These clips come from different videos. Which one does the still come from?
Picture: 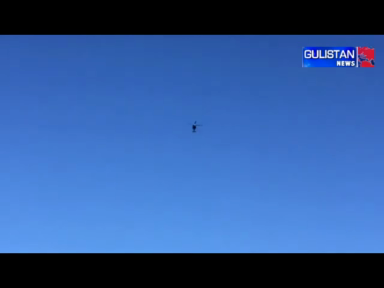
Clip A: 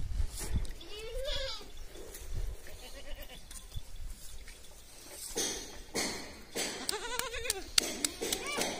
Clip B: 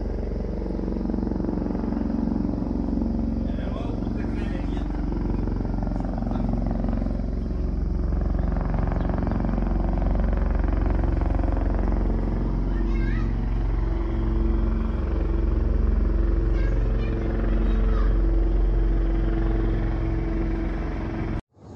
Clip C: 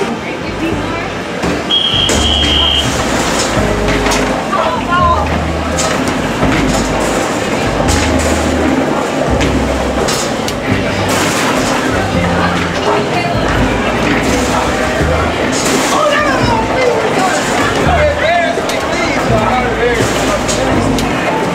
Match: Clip B